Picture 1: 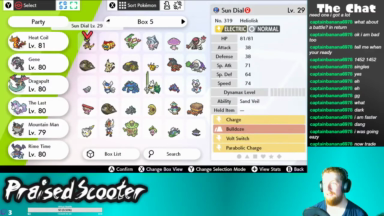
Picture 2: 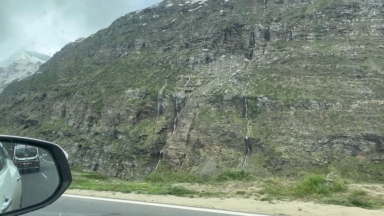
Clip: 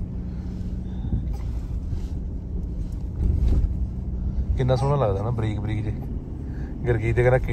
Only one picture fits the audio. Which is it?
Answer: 2